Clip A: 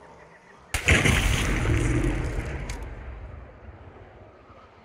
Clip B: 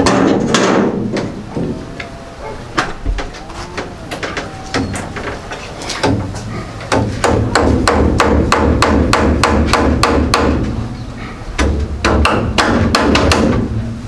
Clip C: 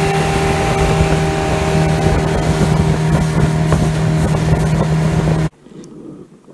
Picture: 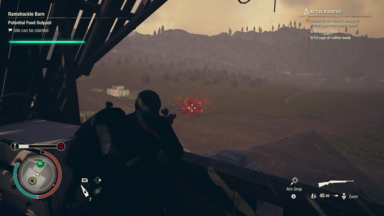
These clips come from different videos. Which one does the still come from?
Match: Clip A